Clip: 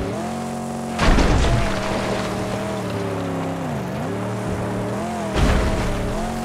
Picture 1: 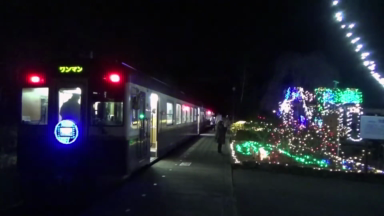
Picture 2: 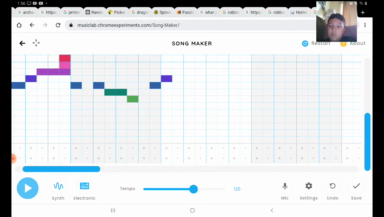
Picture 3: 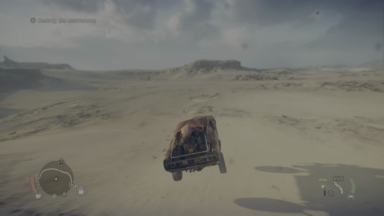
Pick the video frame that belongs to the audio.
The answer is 3